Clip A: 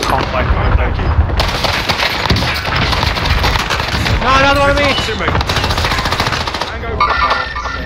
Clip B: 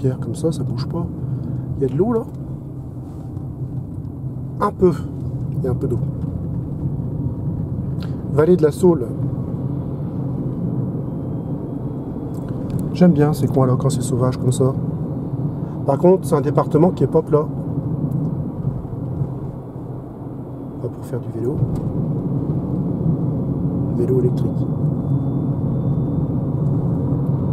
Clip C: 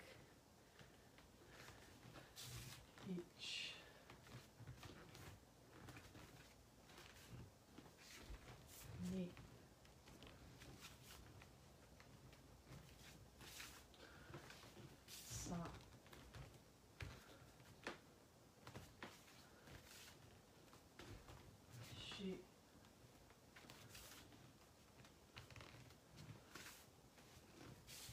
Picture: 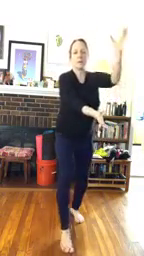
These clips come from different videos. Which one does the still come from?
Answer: C